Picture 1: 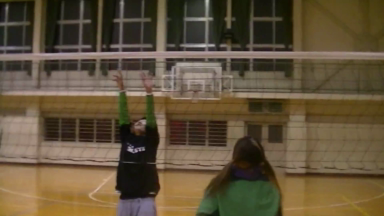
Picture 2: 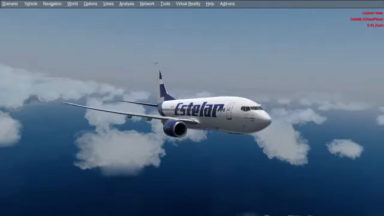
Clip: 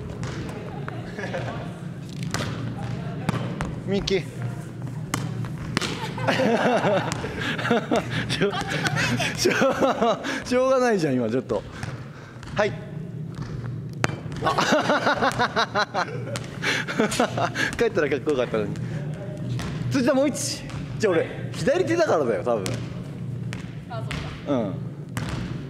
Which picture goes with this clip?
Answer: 1